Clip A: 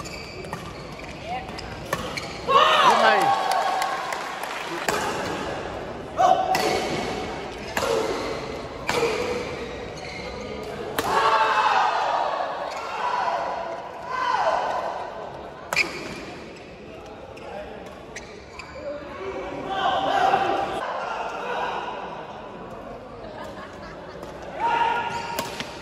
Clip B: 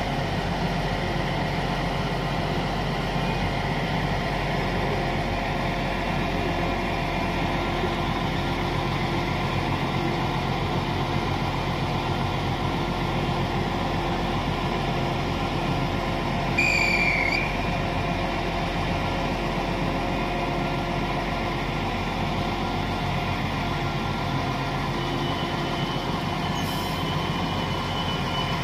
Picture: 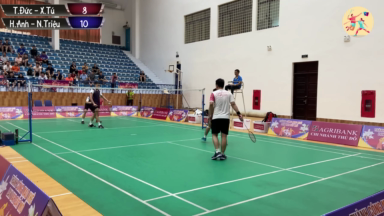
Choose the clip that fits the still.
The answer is A